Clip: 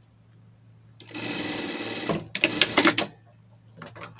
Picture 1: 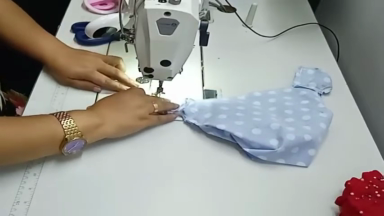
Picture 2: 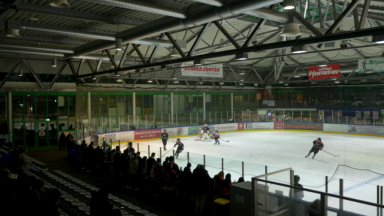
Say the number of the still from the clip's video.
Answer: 1